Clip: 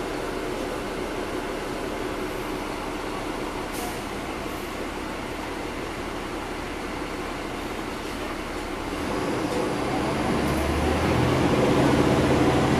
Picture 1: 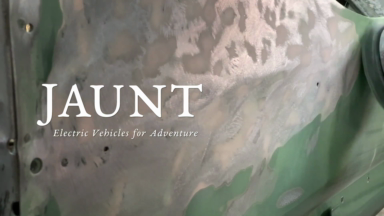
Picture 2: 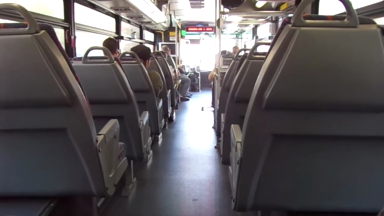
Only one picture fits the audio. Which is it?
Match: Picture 2